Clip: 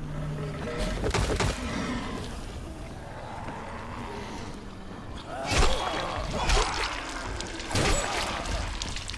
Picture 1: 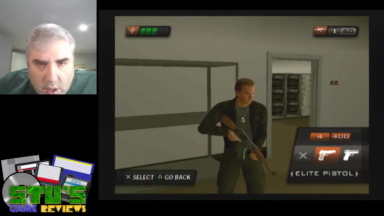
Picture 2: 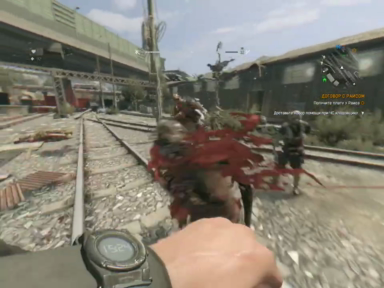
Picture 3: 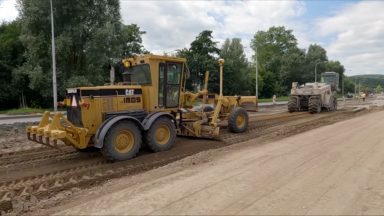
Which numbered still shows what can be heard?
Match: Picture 2